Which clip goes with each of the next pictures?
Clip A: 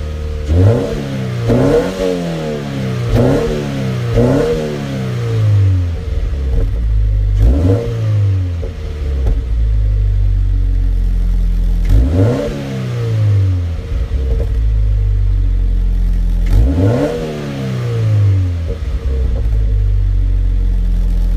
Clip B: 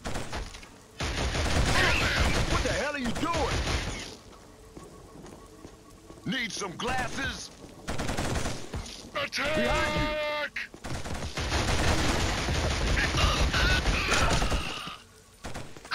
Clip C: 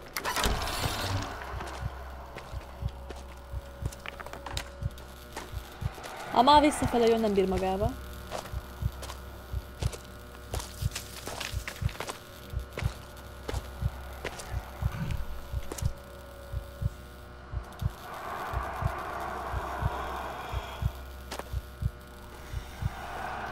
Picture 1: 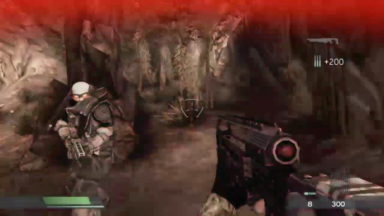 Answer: B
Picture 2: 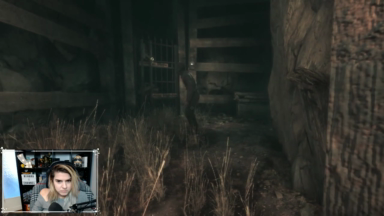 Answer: C